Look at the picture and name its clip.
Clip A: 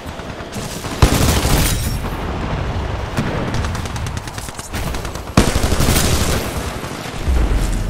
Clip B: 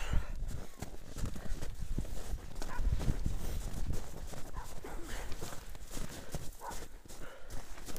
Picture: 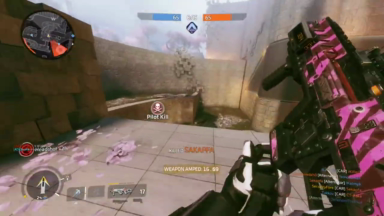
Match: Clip A